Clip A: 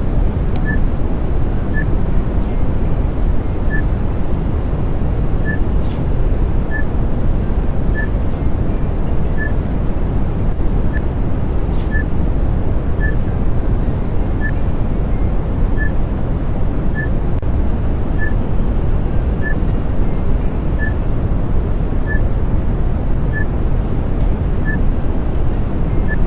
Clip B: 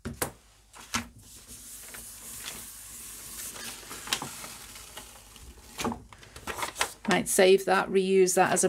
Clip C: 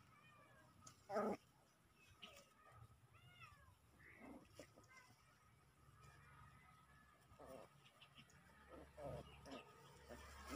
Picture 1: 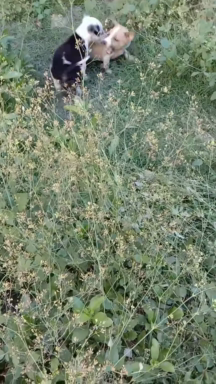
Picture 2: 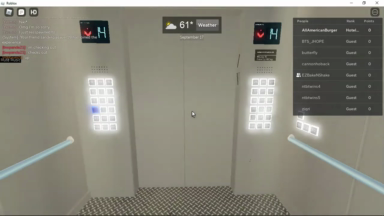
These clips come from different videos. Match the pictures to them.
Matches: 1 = C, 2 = A